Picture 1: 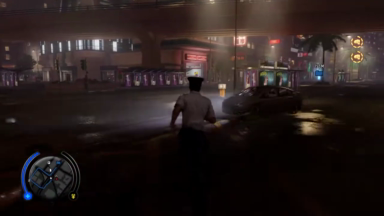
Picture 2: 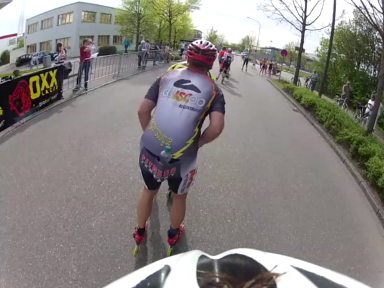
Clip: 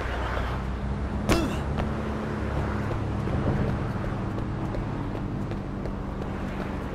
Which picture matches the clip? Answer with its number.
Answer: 1